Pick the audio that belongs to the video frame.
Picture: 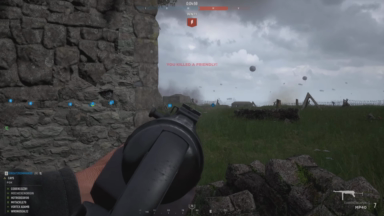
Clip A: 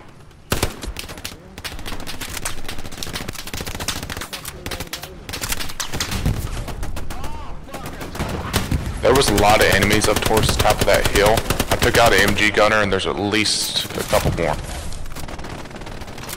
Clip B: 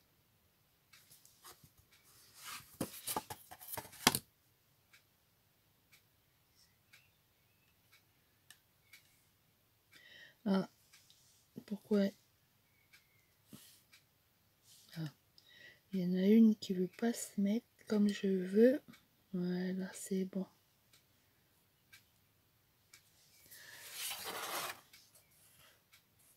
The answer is A